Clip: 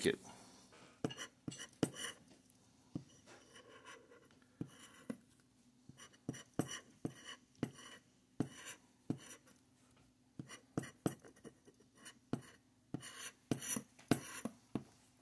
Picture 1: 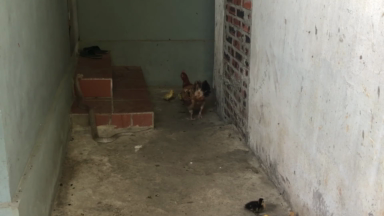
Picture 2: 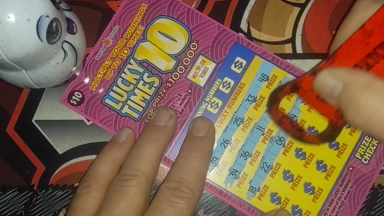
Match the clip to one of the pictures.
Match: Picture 2